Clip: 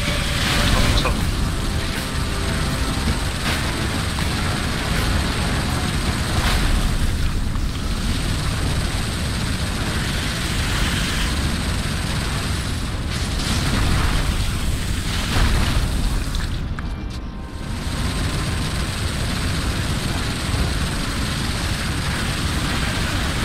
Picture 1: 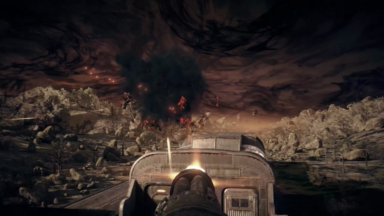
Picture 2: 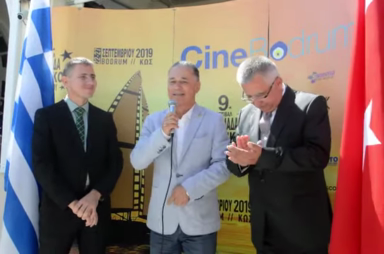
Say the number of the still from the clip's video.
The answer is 1